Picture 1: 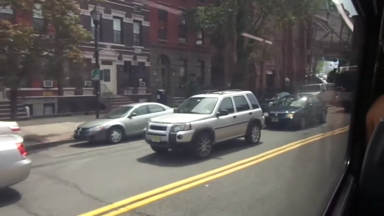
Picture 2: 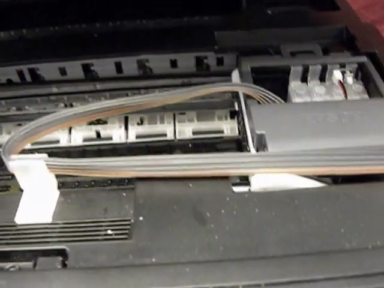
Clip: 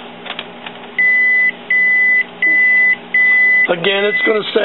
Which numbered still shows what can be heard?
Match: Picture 2